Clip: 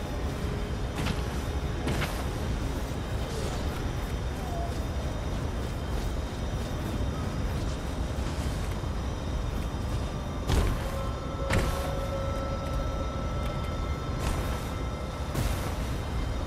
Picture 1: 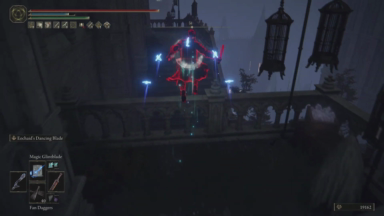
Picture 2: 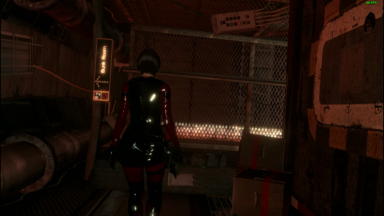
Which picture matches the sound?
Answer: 1